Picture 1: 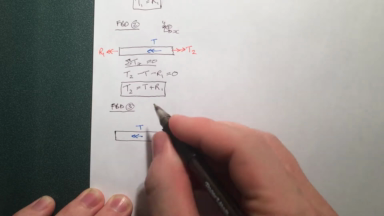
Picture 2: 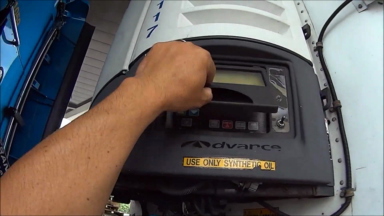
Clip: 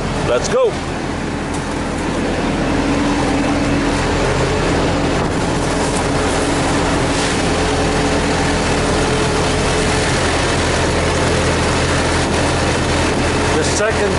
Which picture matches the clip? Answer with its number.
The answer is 2